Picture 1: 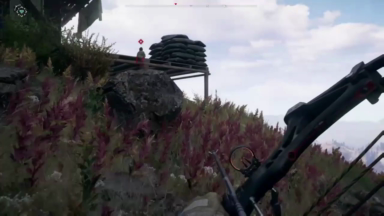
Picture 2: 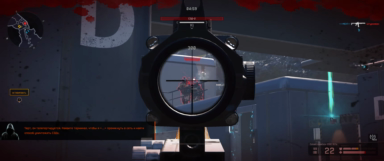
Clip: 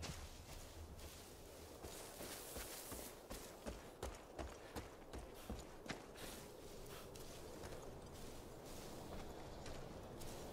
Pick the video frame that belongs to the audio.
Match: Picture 1